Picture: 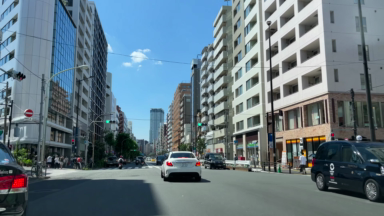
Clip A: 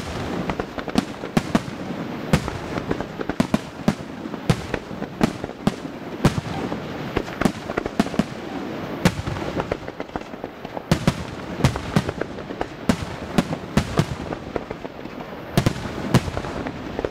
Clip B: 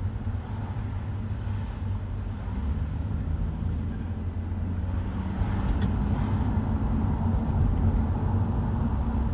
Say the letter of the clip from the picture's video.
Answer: B